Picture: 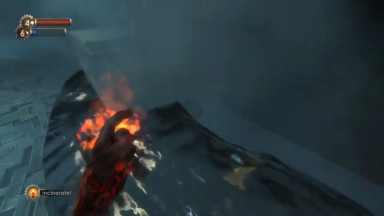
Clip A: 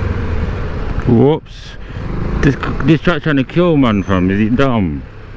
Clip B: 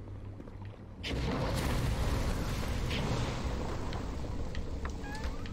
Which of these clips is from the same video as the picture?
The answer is B